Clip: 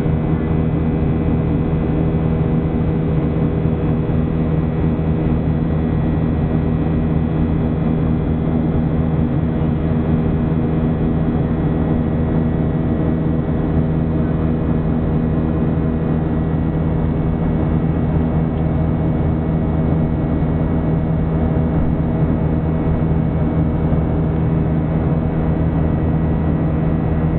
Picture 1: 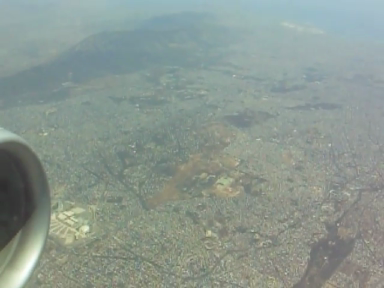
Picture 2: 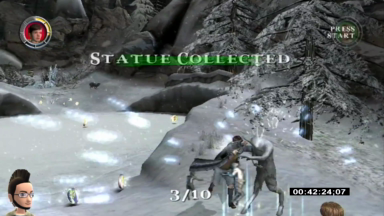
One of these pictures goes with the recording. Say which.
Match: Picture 1